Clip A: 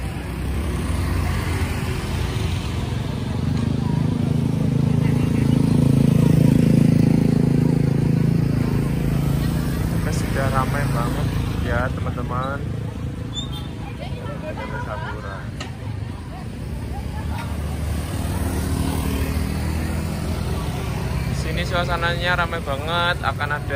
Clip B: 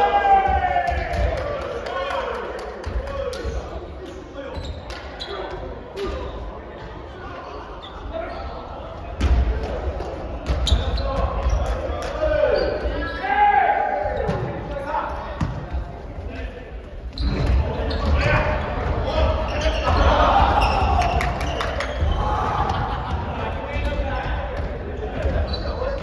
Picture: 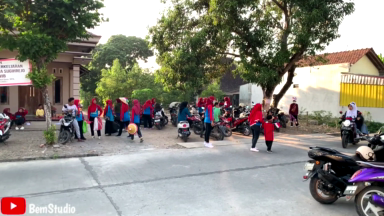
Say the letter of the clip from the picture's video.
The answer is A